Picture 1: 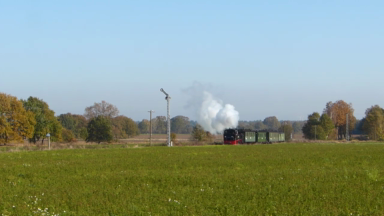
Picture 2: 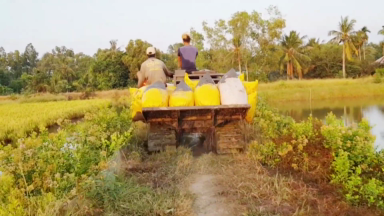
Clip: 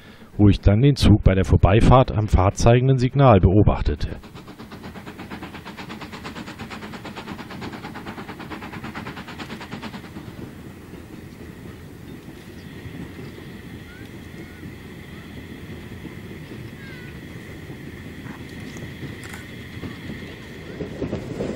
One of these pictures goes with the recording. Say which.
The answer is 1